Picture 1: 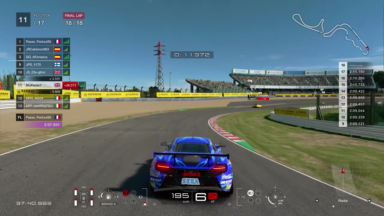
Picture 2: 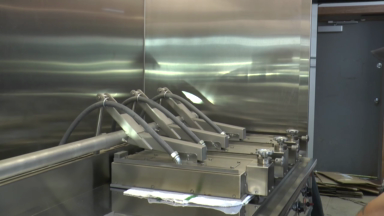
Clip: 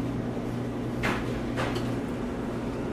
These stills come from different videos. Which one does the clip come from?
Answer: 2